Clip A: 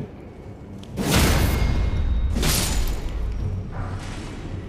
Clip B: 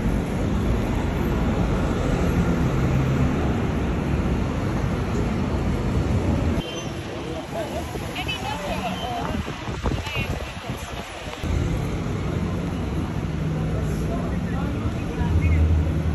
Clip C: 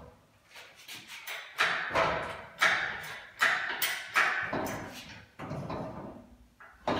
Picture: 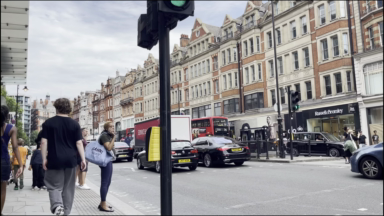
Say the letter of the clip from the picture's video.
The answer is B